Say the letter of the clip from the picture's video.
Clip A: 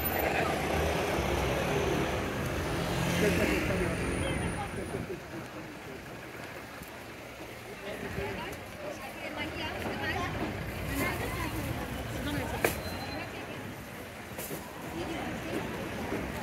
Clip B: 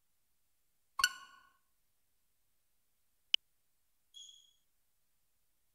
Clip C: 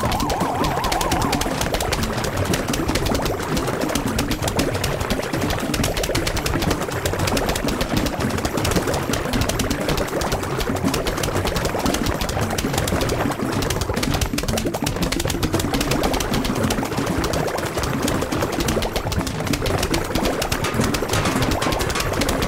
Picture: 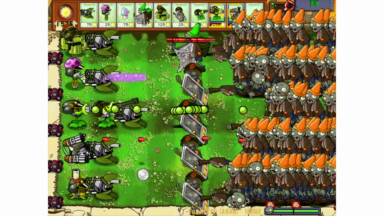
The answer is C